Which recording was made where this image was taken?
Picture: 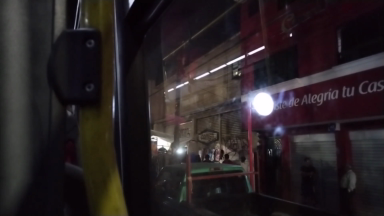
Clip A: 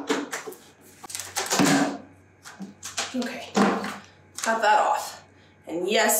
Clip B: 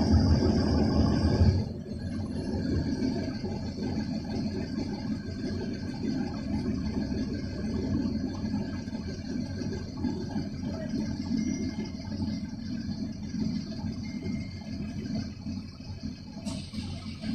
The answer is B